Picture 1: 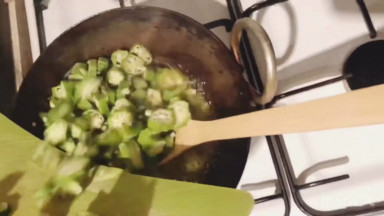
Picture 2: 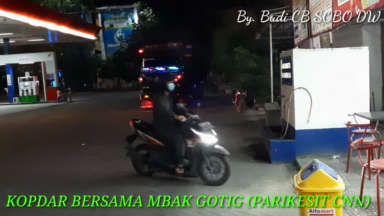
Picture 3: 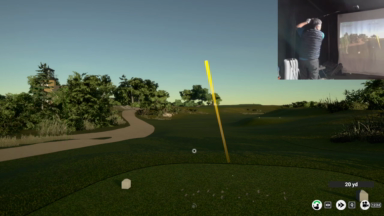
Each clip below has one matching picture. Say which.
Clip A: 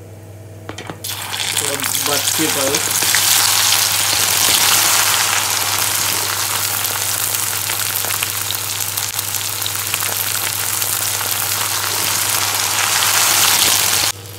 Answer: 1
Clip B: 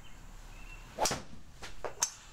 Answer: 3